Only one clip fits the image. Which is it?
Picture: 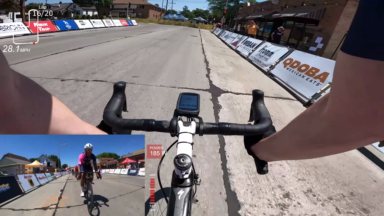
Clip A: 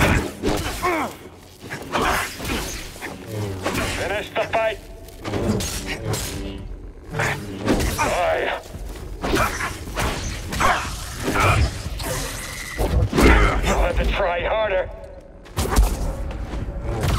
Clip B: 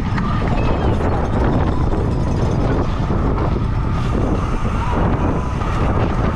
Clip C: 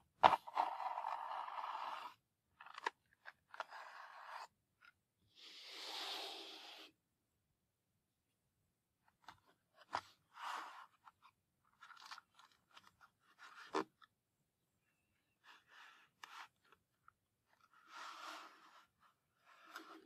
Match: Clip B